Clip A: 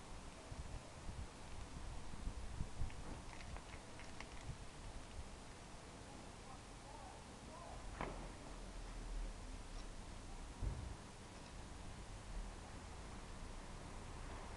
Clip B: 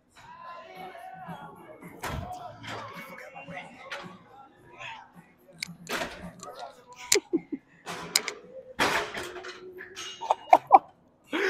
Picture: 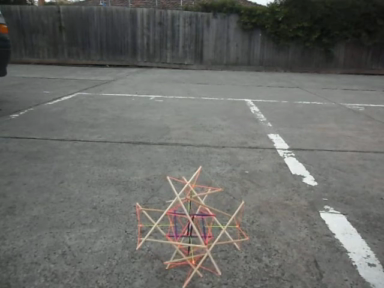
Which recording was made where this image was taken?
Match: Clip A